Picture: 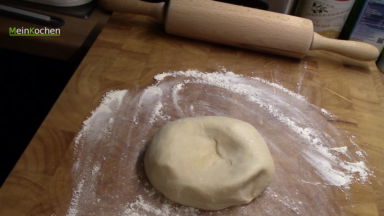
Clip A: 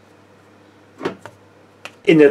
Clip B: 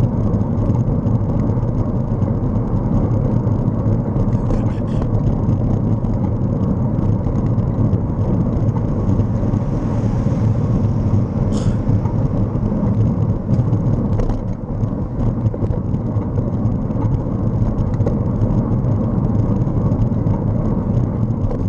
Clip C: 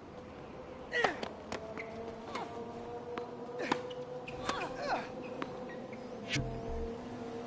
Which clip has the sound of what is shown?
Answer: A